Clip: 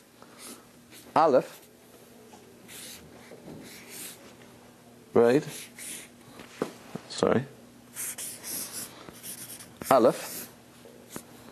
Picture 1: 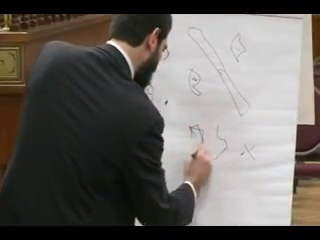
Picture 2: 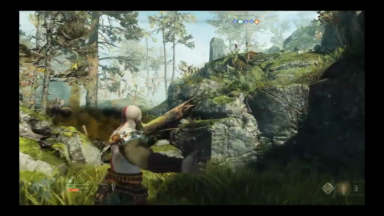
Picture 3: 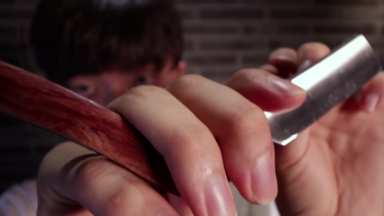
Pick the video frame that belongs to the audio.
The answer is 1